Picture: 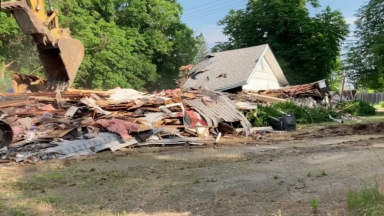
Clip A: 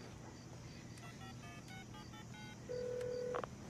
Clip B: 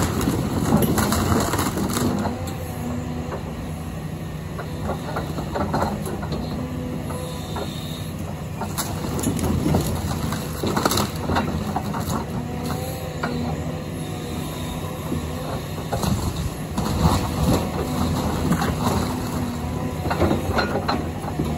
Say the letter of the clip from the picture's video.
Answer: B